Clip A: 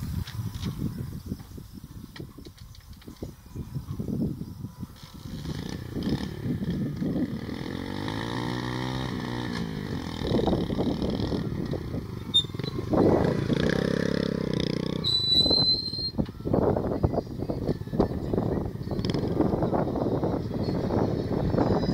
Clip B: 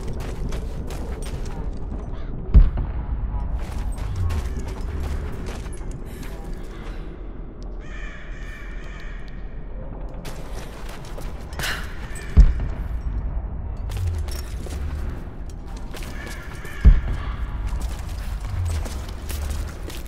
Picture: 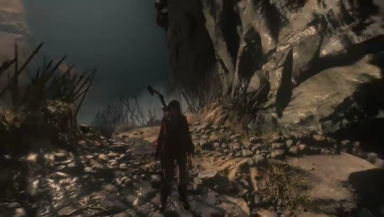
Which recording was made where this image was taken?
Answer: B